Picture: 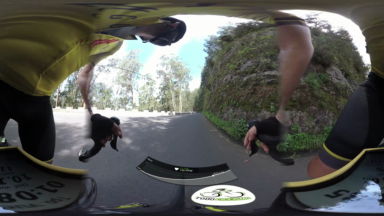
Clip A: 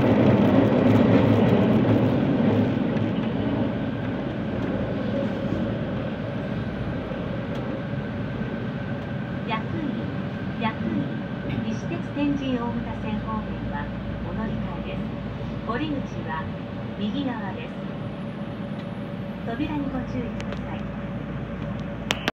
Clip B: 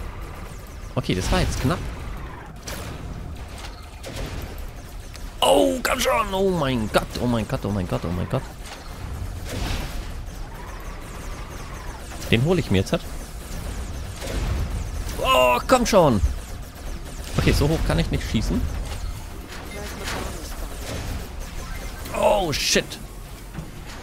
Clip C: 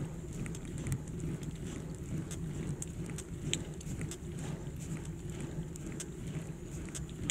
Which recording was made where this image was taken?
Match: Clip C